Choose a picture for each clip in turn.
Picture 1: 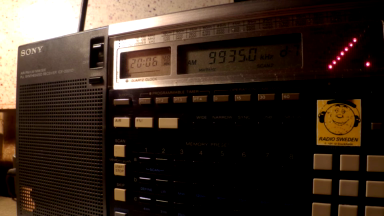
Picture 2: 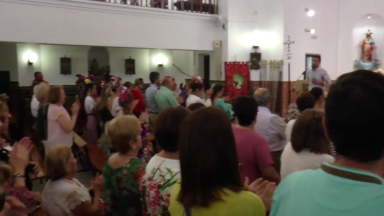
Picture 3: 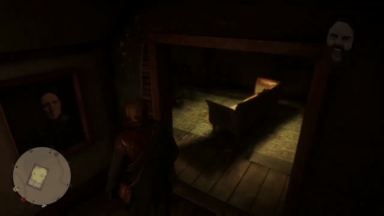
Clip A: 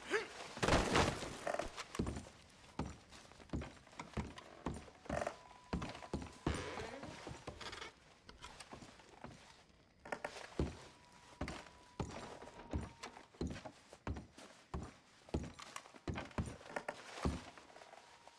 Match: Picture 3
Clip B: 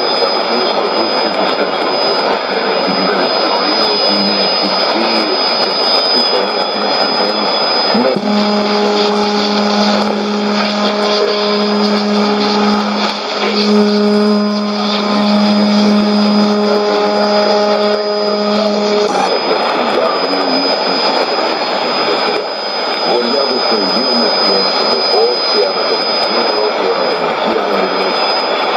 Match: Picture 1